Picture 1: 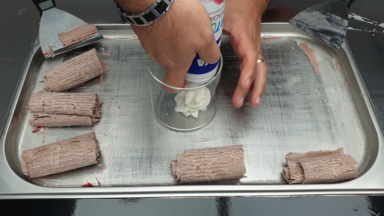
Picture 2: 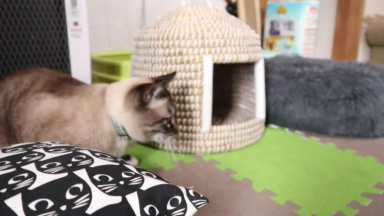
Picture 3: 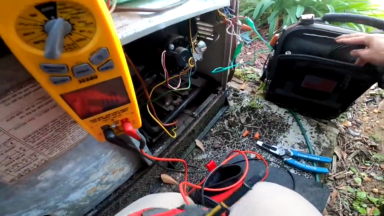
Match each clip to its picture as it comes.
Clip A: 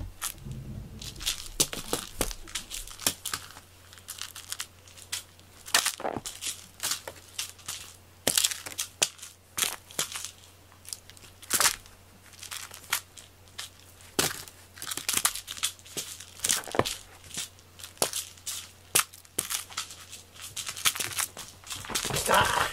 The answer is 2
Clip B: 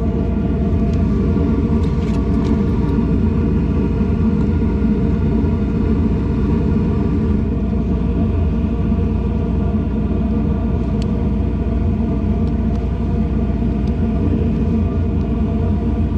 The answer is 3